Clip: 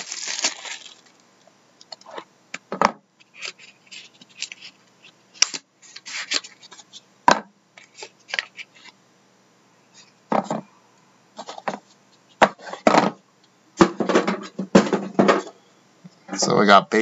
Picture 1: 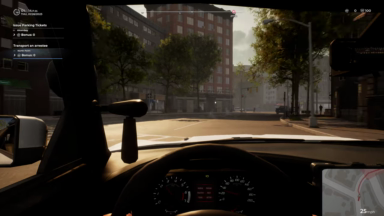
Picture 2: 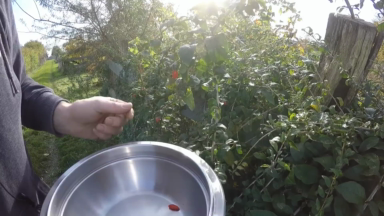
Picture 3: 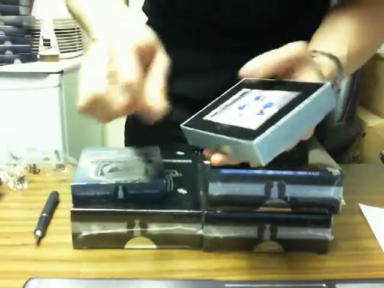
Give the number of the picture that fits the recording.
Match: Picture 3